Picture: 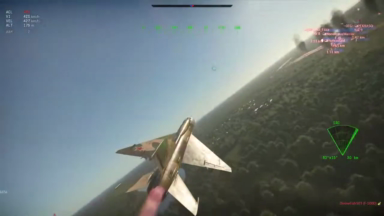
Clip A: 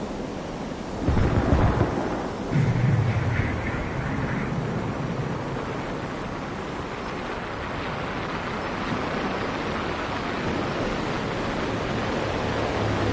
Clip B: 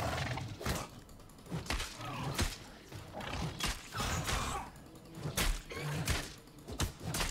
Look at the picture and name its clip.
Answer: A